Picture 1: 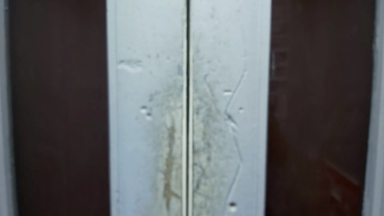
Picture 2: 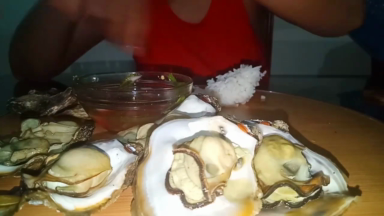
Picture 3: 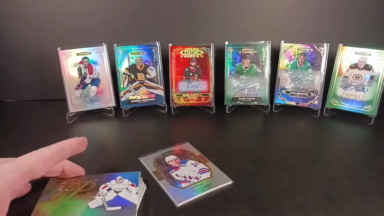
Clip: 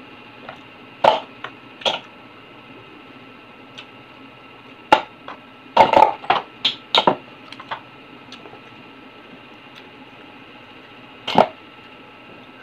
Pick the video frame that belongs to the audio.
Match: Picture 2